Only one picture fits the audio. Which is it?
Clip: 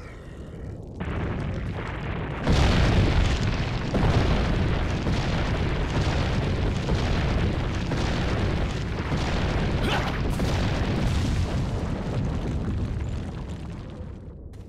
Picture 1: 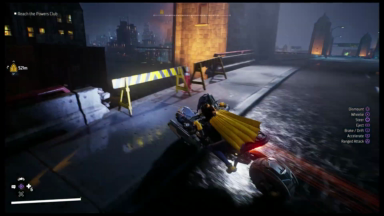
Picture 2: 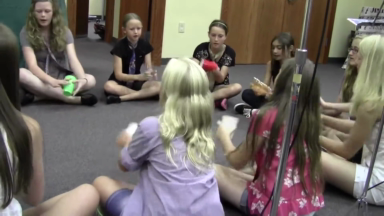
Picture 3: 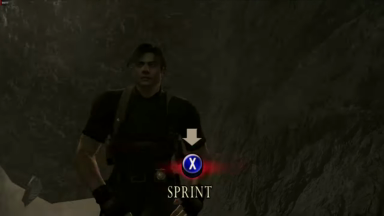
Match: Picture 3